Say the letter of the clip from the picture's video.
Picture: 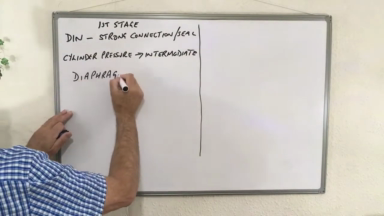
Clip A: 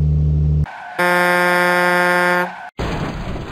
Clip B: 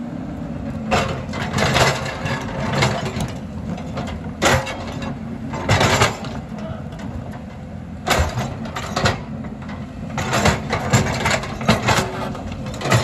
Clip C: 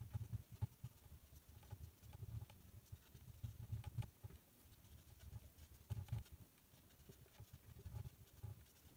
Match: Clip C